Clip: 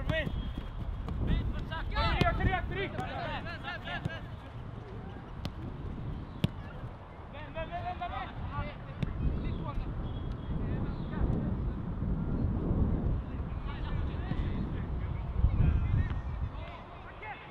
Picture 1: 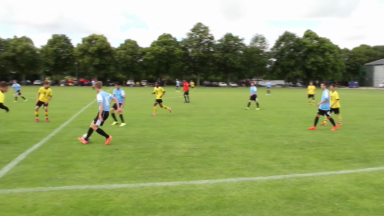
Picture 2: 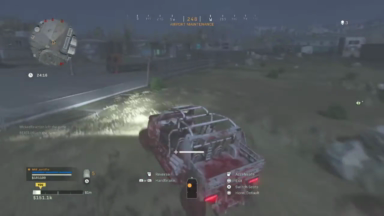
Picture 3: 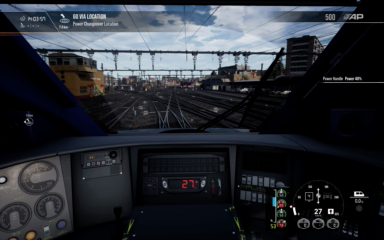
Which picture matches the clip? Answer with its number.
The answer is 1